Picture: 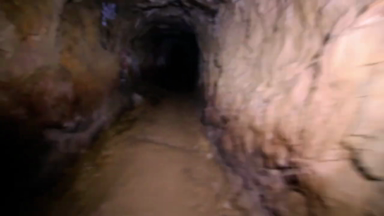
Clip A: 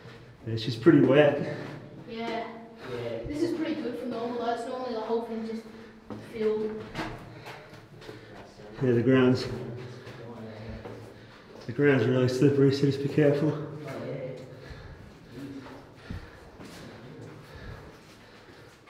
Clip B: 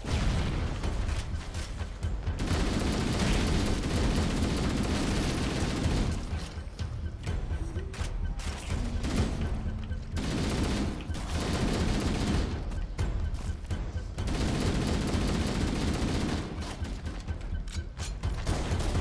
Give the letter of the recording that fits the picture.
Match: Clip A